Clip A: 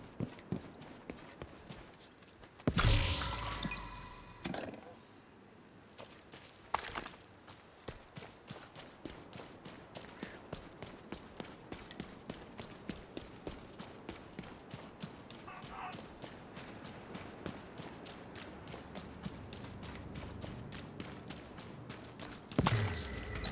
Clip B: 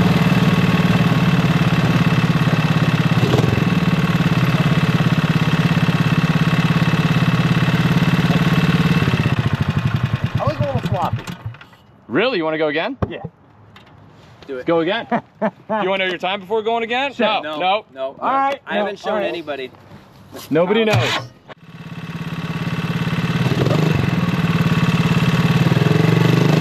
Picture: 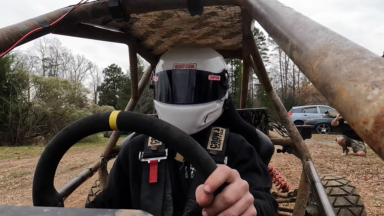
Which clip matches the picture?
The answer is B